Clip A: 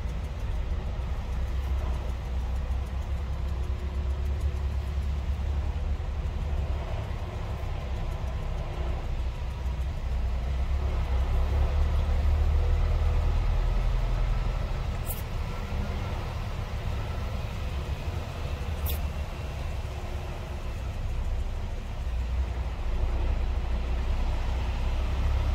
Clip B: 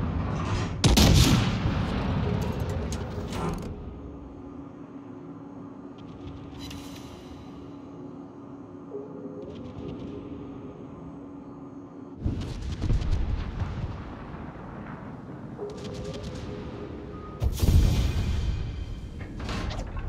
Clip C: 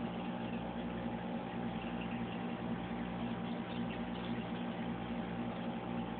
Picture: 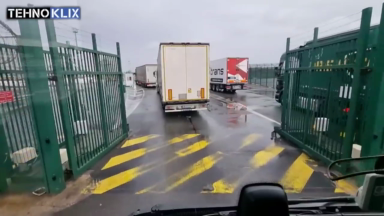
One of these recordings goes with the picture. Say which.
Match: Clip A